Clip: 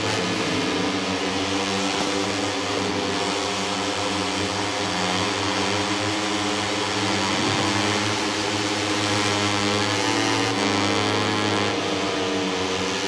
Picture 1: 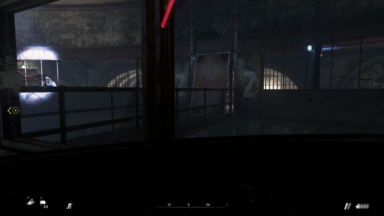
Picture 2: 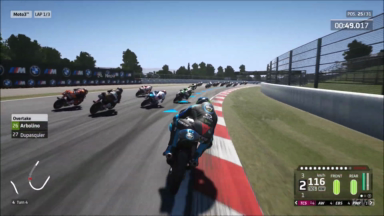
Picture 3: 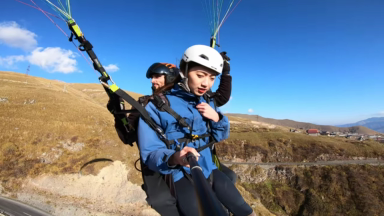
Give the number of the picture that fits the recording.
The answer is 2